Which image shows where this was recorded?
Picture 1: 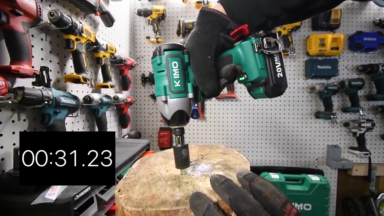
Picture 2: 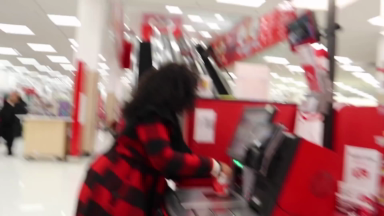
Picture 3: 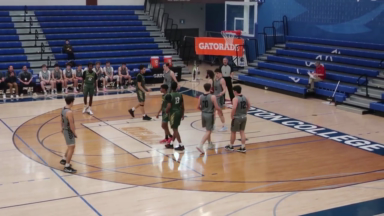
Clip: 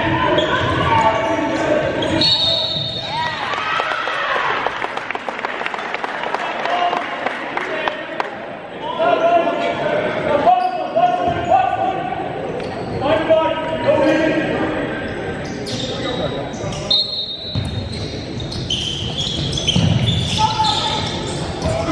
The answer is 3